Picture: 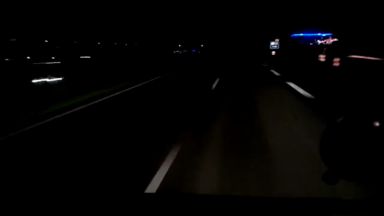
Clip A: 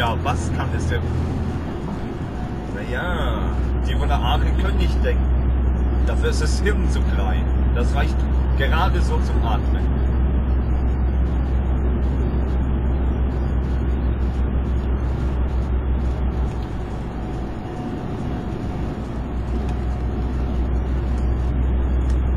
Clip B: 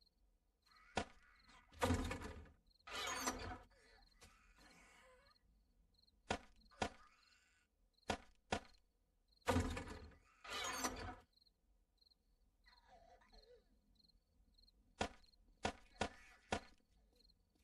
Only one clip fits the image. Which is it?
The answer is A